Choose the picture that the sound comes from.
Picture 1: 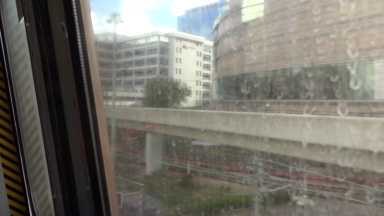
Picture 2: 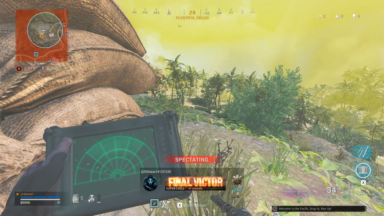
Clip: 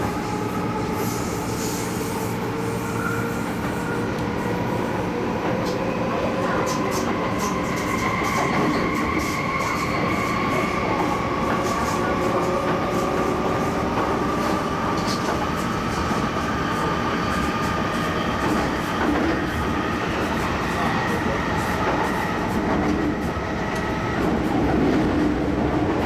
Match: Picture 1